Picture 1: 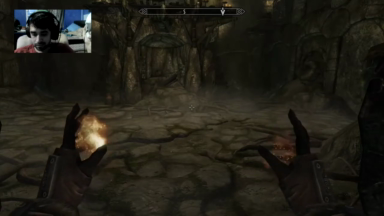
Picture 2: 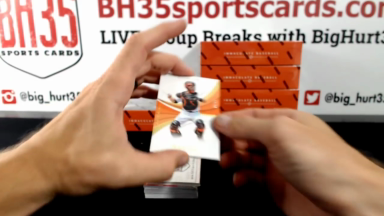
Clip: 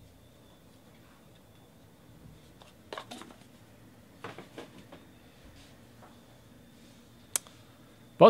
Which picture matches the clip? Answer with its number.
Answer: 2